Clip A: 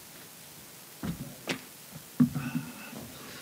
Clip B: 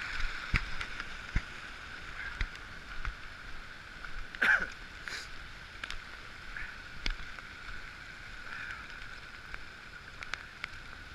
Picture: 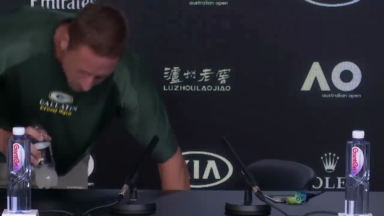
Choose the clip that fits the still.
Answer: A